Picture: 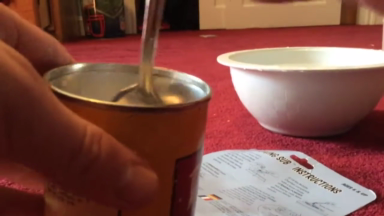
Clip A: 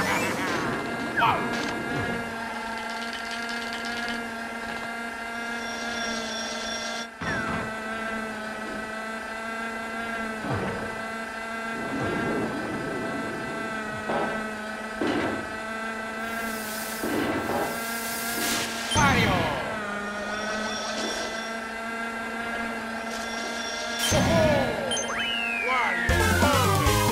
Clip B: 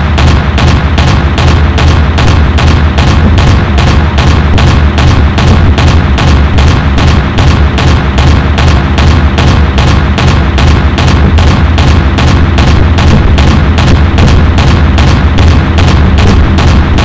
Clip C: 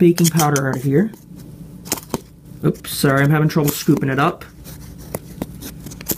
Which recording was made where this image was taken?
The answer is C